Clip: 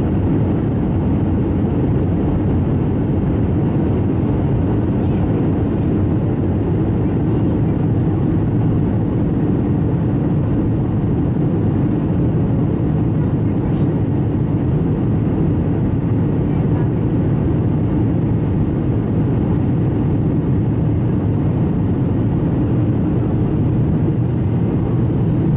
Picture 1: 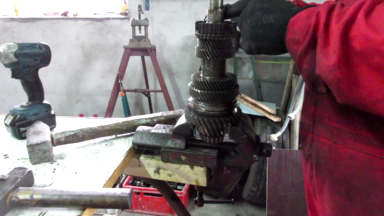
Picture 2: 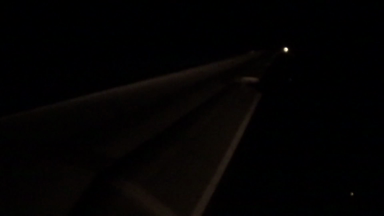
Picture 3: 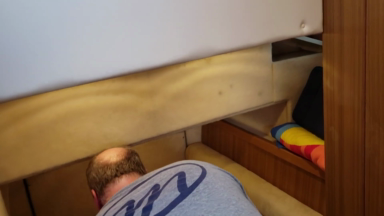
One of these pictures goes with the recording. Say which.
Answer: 2